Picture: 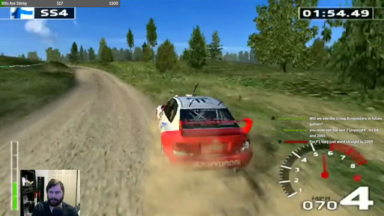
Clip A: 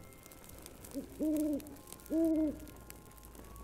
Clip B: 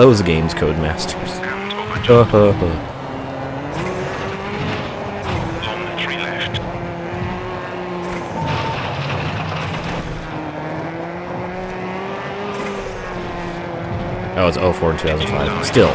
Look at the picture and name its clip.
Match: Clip B